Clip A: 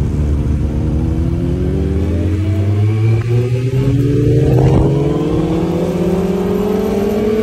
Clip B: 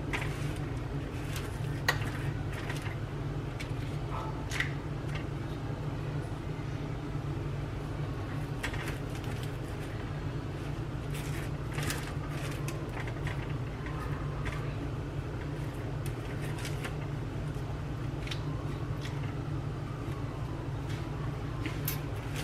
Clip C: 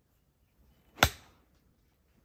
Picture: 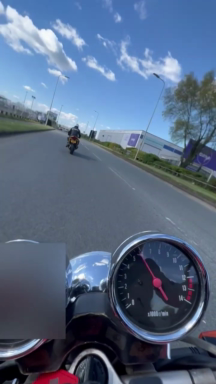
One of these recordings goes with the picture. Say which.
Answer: A